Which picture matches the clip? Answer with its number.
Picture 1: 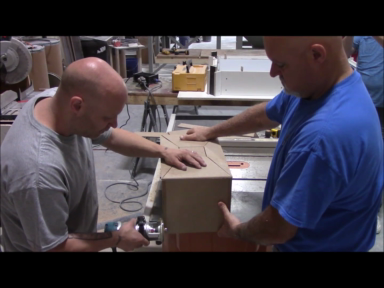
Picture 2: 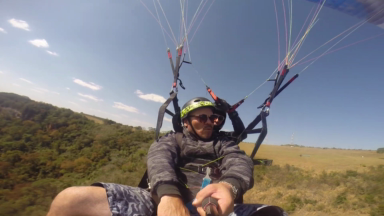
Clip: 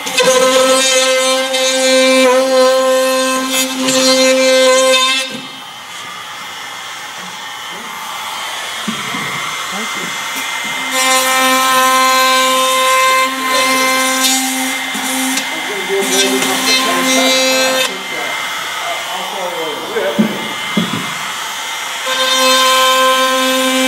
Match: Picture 1